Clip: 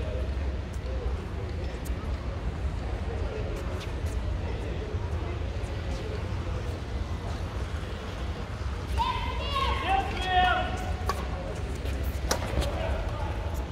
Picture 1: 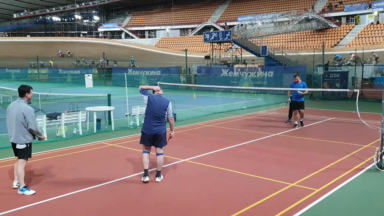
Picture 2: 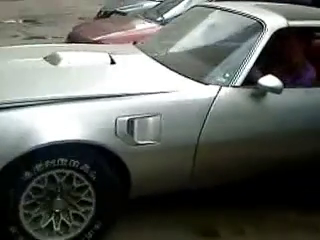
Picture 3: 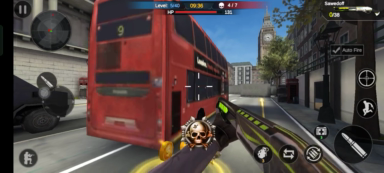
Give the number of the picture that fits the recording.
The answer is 1